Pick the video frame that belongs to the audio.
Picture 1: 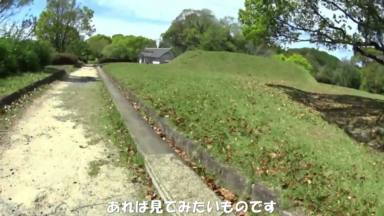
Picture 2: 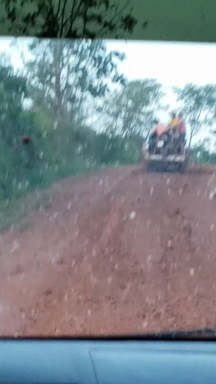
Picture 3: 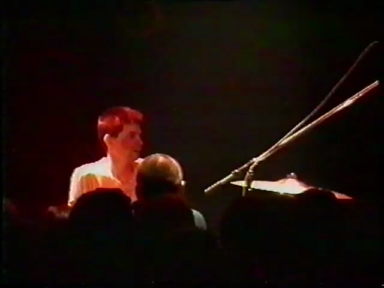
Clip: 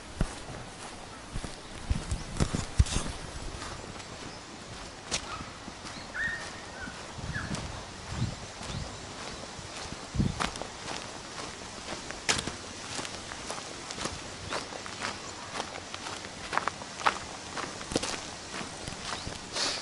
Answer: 1